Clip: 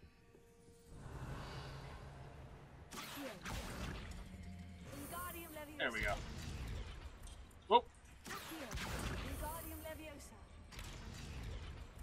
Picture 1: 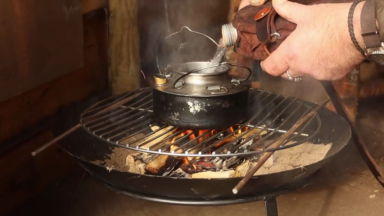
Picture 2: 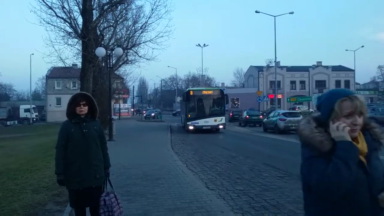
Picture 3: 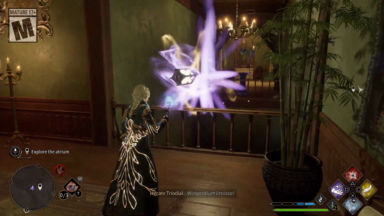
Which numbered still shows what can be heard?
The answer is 3